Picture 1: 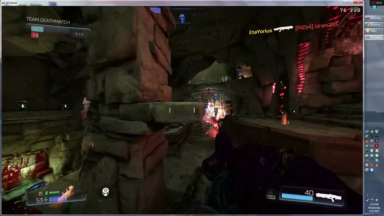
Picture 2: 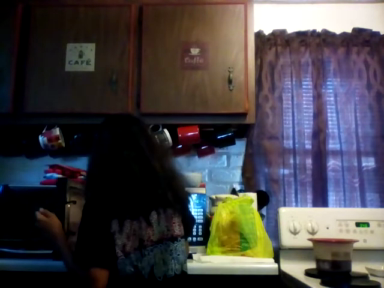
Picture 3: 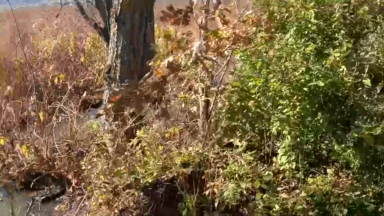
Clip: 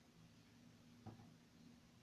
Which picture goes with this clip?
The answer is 2